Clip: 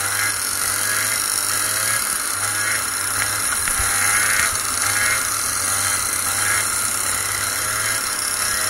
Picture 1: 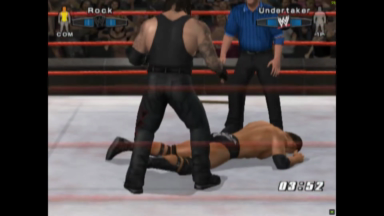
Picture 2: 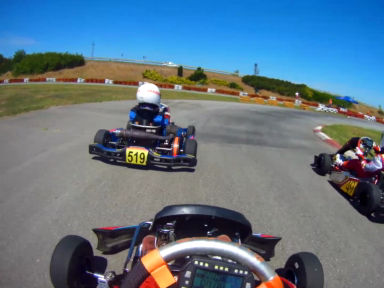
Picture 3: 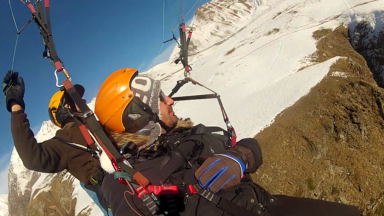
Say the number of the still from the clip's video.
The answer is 2